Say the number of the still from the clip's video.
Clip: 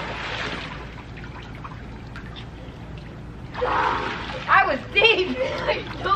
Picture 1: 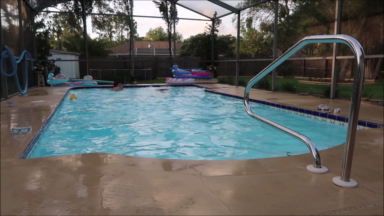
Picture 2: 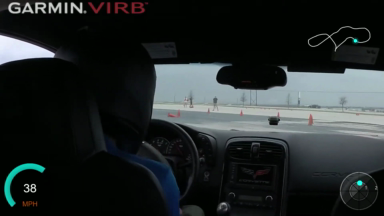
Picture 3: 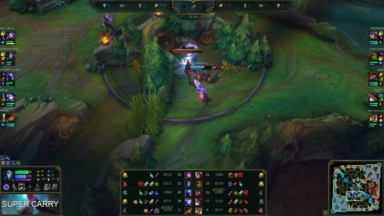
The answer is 1